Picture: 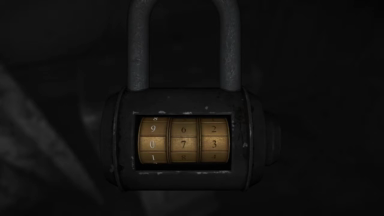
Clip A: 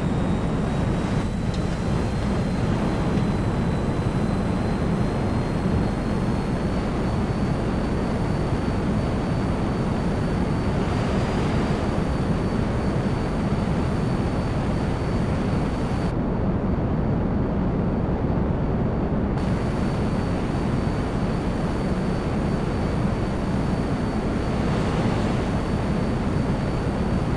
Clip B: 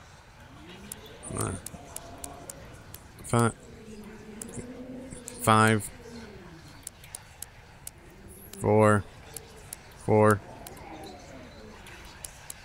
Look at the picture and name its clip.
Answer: B